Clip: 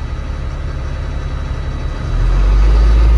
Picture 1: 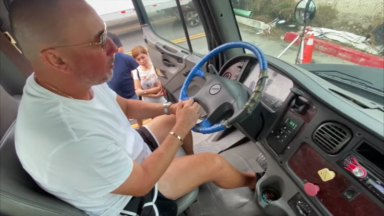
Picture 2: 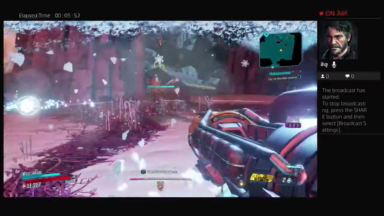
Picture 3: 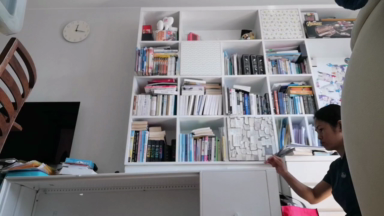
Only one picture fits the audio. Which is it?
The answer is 1